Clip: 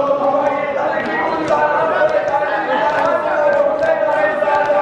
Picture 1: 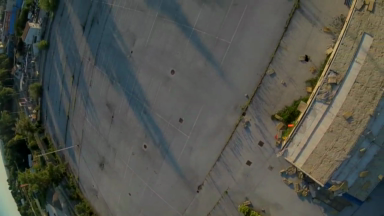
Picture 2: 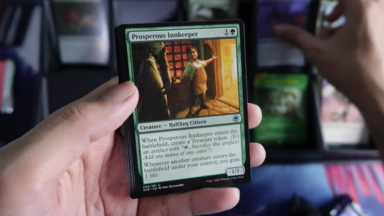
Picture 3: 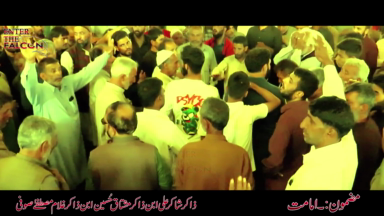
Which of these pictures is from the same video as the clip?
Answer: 3